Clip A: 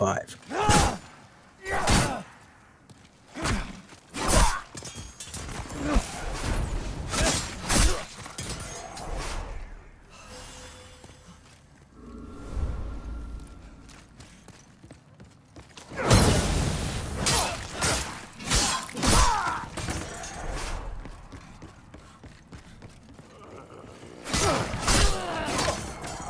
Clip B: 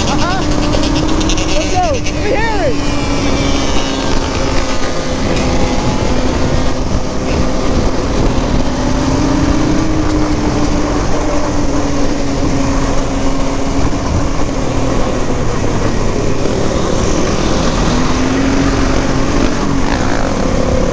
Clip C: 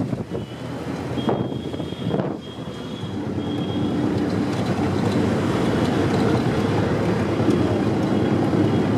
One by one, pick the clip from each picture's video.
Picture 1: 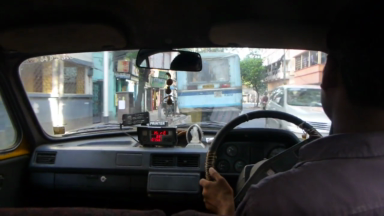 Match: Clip C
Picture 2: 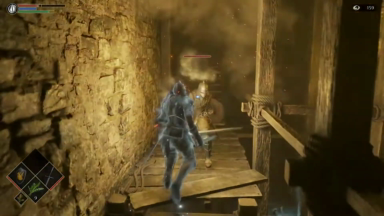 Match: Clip A